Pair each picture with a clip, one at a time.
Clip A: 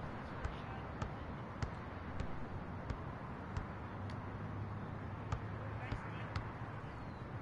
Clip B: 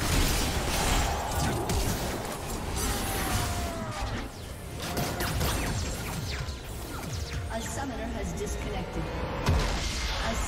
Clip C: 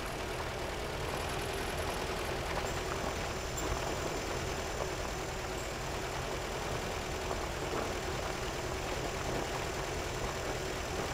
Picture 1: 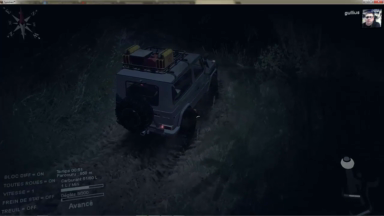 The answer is C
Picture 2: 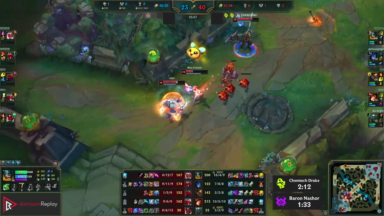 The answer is B